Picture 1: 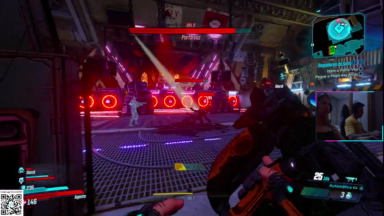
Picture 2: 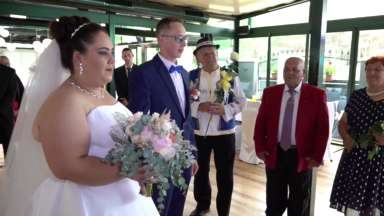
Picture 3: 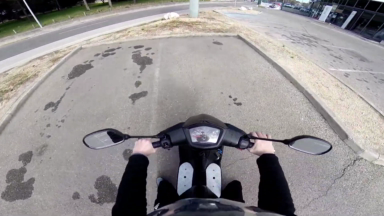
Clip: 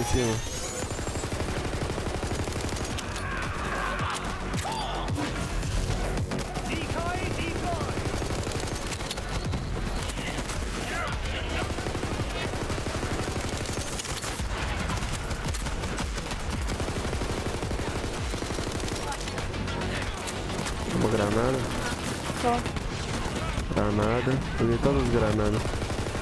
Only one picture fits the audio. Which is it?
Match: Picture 1